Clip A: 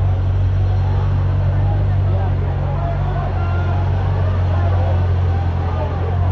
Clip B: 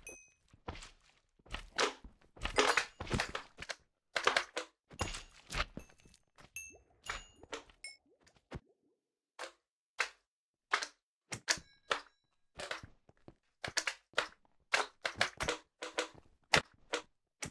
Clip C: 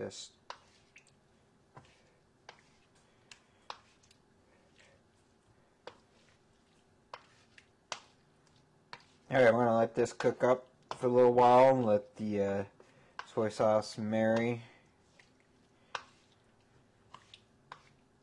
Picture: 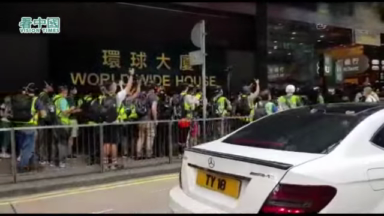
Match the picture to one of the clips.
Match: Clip A